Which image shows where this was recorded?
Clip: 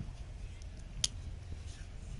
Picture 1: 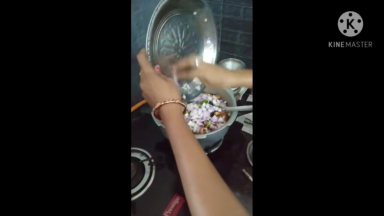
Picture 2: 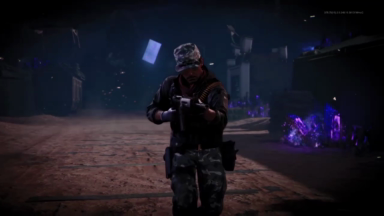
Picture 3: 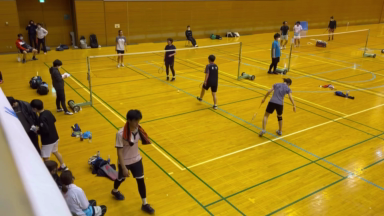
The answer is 2